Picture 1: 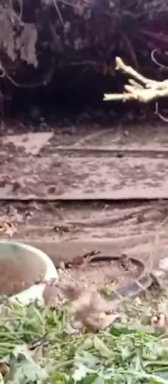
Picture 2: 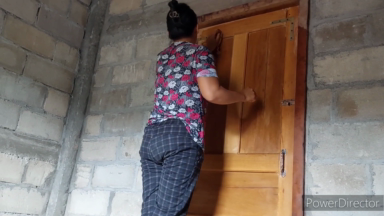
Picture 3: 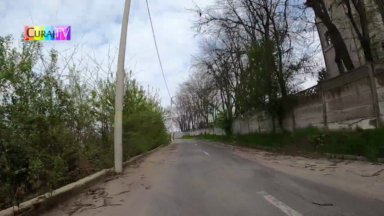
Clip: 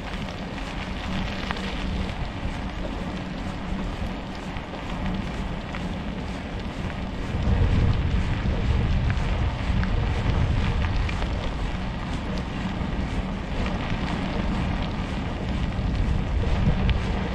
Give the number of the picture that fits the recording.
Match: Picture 3